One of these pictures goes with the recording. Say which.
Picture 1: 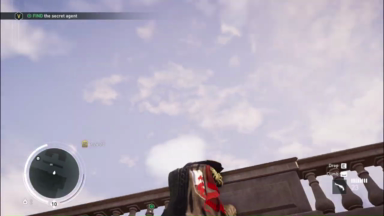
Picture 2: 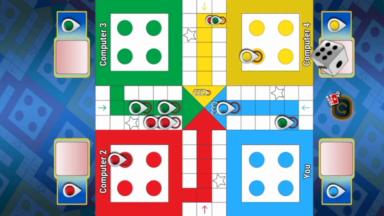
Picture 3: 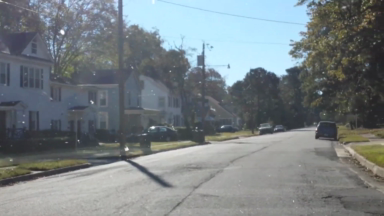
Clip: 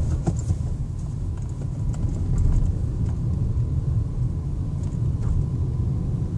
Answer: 3